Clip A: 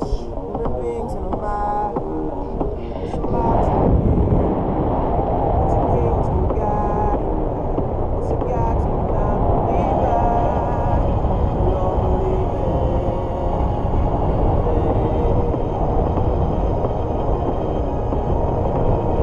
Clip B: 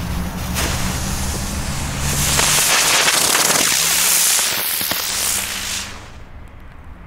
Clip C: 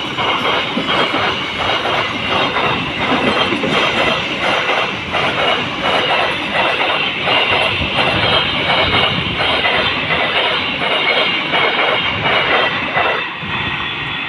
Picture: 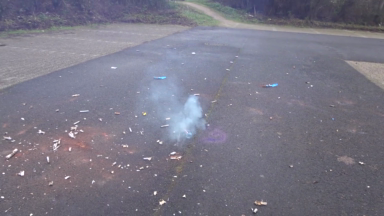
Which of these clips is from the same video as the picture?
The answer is B